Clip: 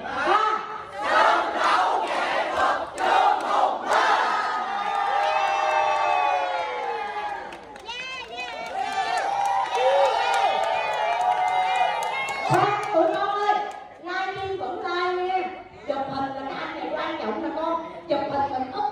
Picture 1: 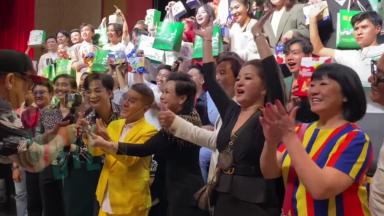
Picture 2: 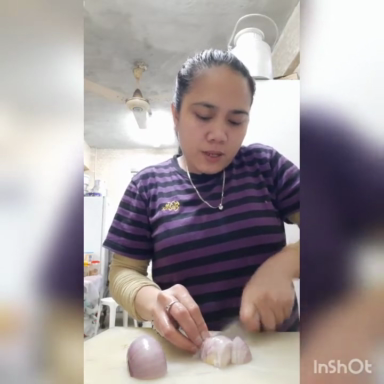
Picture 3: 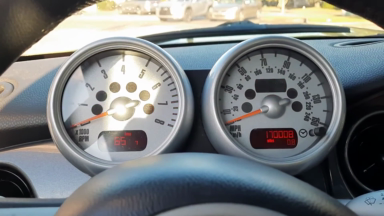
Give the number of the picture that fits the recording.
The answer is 1